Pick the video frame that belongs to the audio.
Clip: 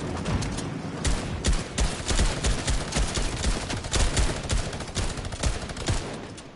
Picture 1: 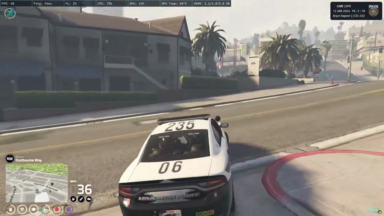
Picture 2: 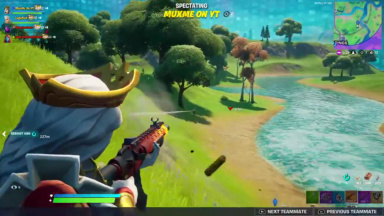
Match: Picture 2